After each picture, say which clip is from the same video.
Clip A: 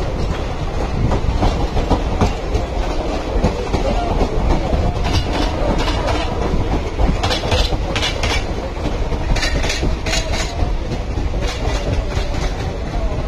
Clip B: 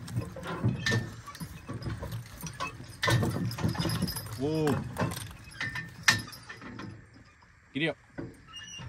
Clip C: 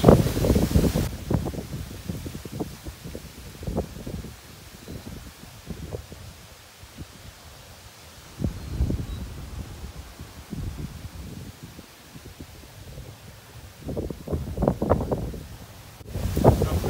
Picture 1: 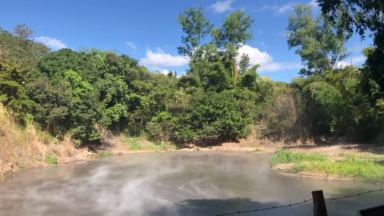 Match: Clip C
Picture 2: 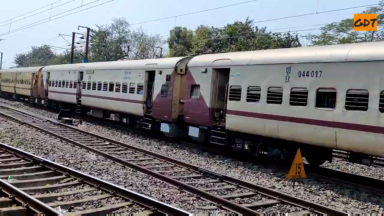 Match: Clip A